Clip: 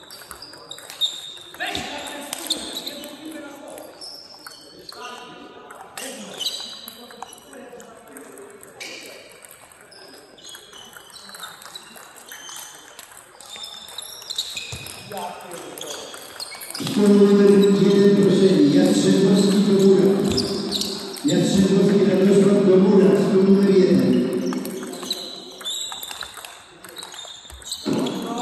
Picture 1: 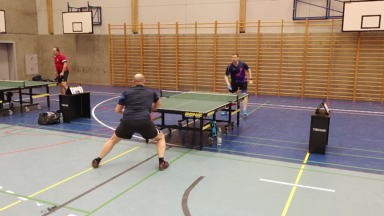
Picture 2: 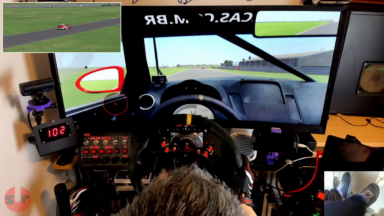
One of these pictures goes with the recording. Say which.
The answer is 1